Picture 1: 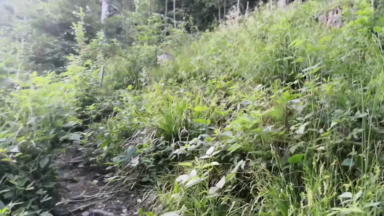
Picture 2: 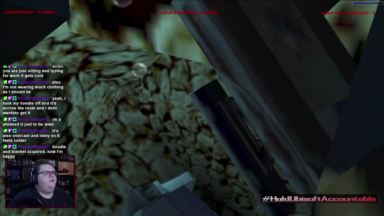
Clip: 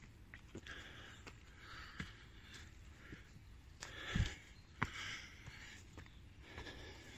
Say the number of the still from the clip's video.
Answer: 1